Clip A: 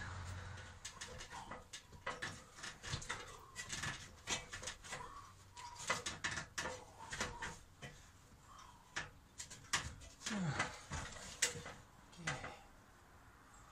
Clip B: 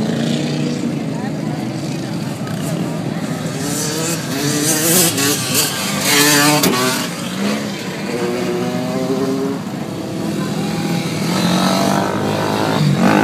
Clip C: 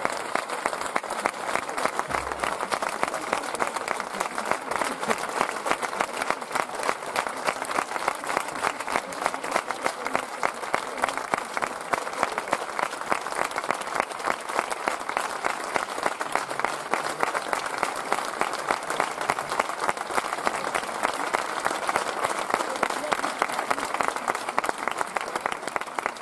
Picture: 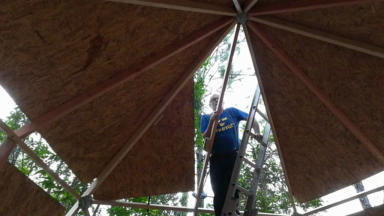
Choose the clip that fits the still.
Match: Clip A